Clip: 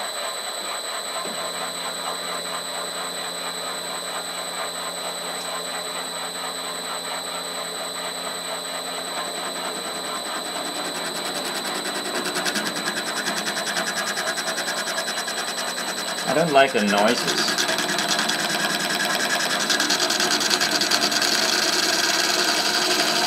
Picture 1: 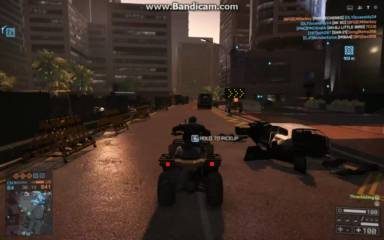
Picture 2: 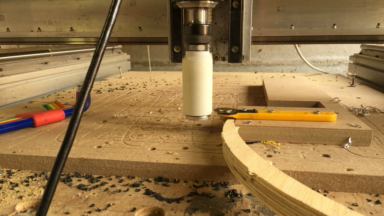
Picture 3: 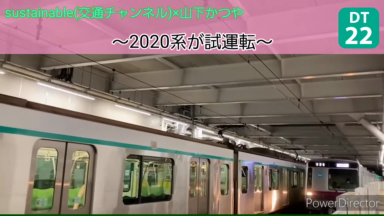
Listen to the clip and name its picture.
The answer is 2